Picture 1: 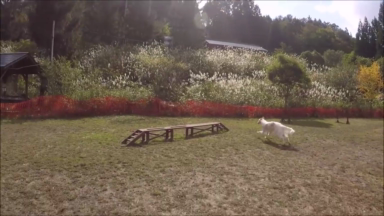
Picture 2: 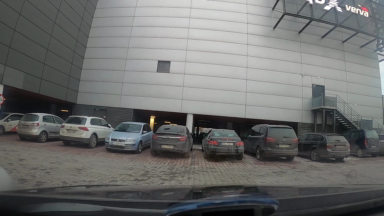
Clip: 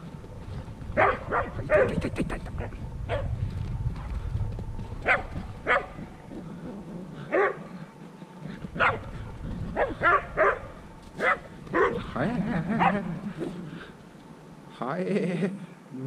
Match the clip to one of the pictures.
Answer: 1